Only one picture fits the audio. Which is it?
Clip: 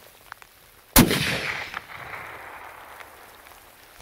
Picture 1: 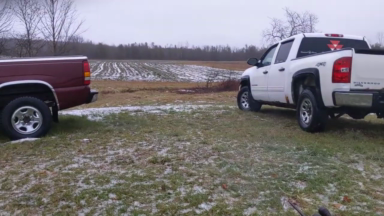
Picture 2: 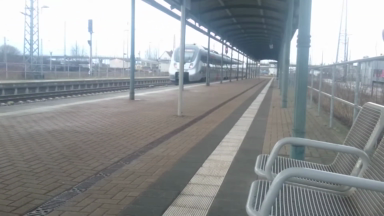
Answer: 1